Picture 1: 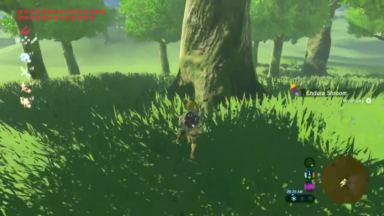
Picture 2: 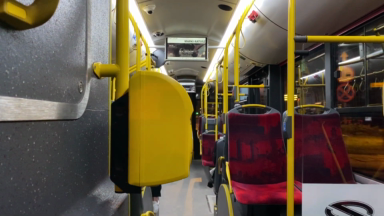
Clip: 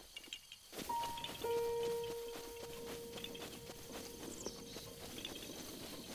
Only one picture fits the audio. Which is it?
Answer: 1